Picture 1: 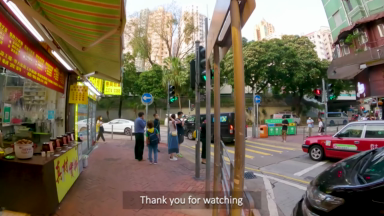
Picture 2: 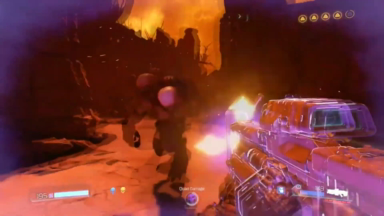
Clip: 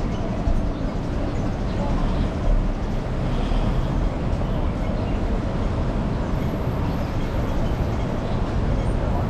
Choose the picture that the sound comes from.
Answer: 1